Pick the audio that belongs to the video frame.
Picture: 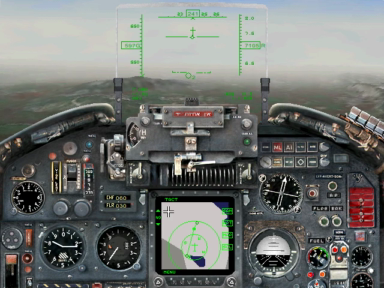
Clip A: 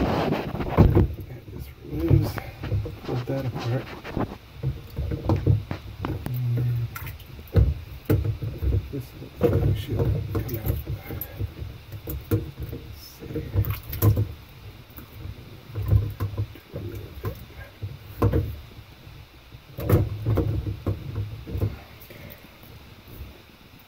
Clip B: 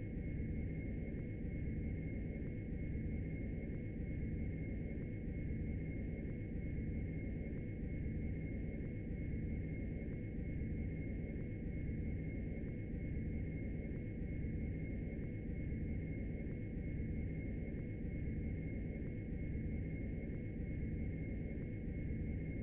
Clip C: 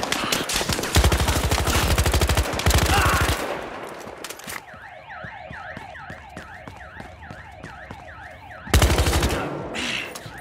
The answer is B